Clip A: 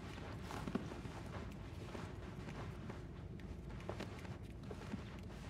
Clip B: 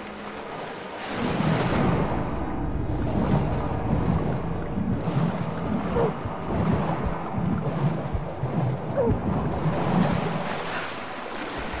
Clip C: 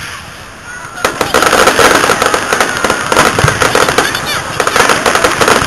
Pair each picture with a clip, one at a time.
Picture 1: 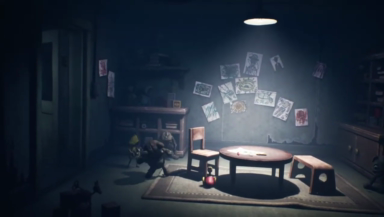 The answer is A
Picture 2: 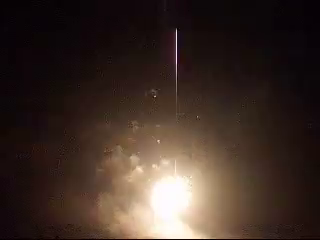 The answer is C